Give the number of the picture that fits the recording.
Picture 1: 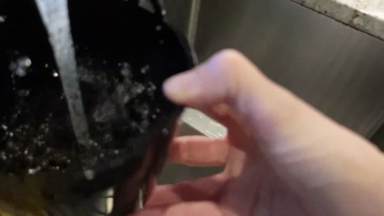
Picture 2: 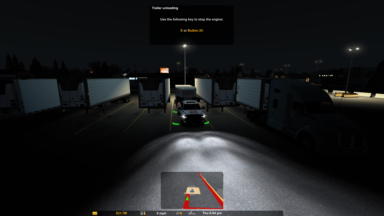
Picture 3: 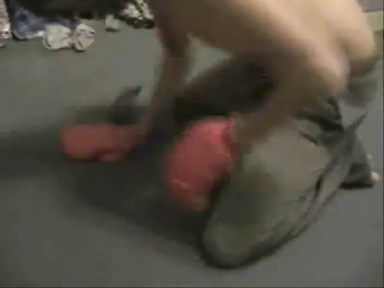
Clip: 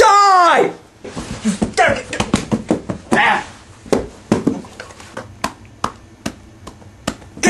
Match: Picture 3